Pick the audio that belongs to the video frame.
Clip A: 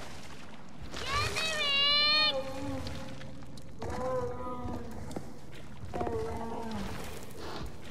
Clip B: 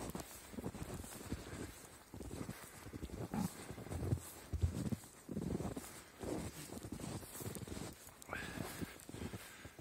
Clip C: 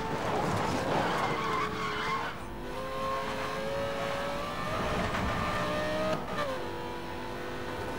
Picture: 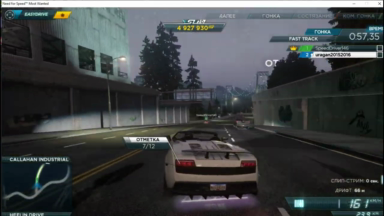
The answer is C